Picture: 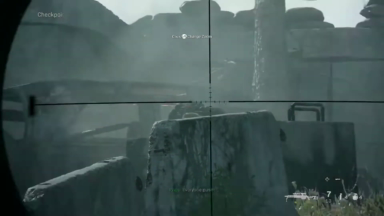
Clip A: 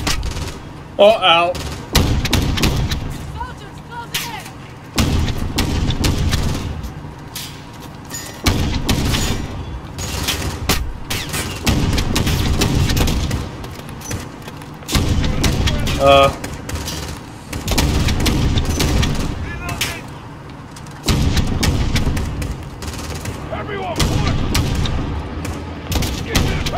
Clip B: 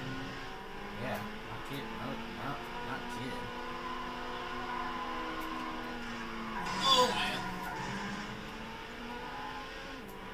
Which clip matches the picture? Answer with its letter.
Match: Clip A